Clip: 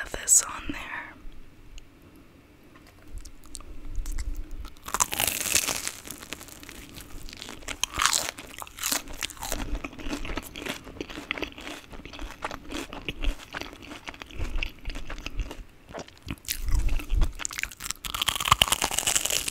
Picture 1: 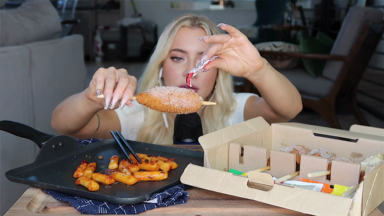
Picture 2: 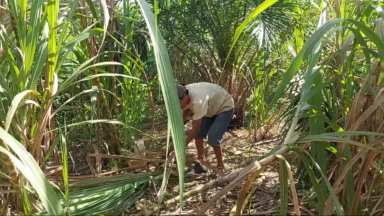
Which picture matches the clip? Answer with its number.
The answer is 1